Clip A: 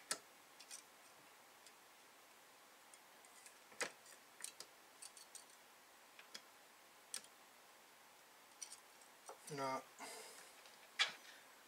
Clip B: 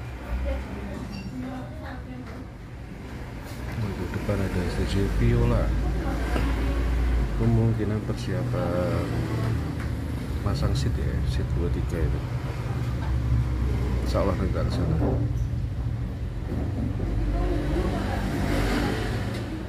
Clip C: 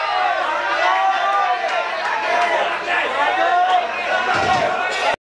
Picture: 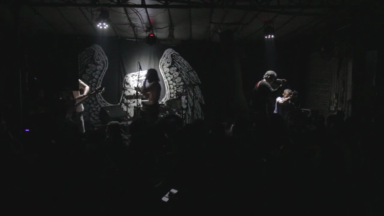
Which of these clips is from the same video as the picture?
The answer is C